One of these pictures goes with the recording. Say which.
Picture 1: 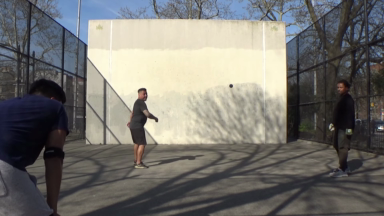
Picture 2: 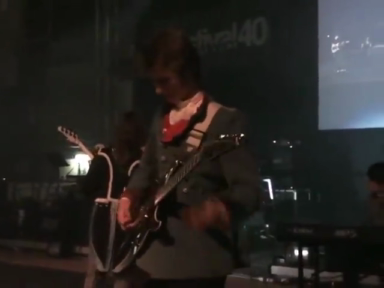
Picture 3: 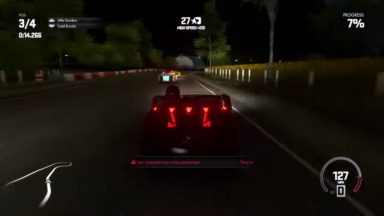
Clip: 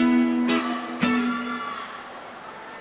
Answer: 2